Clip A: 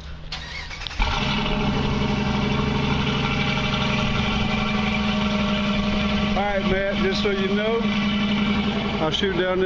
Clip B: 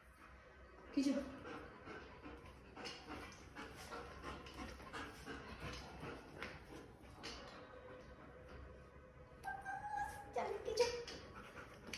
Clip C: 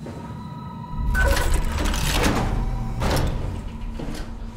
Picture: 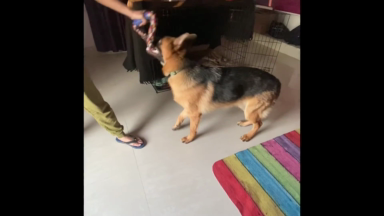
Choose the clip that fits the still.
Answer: B